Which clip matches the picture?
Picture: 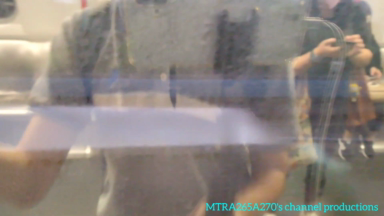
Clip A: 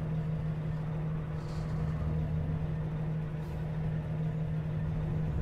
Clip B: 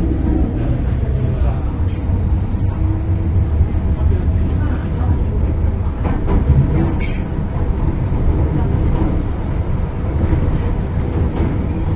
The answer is B